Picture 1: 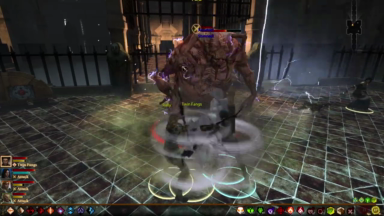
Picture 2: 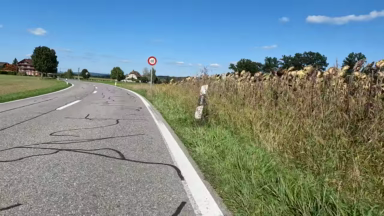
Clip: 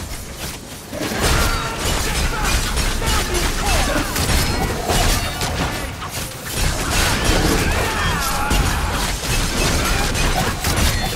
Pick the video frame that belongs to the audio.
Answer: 1